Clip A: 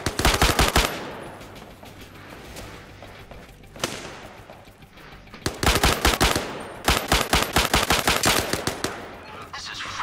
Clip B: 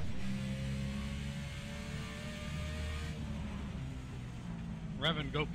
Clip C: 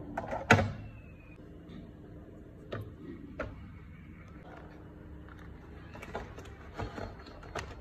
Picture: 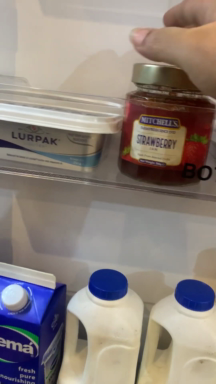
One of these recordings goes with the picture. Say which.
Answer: C